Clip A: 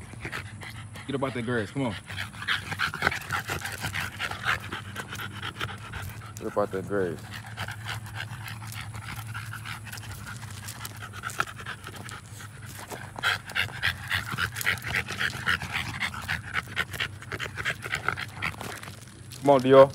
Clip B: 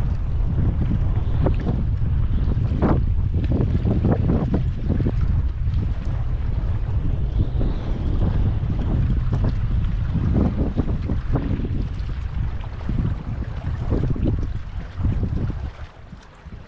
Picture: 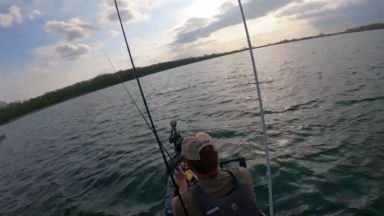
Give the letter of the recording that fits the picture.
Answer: B